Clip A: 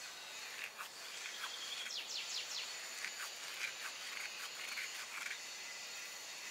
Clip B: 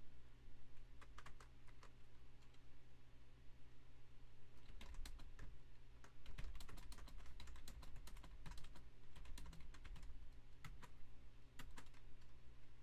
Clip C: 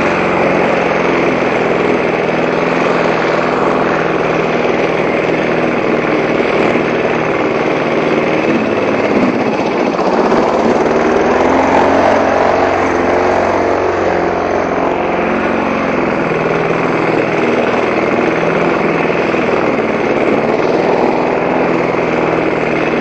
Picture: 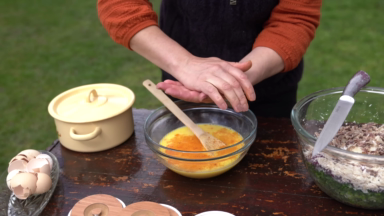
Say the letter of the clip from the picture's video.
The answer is A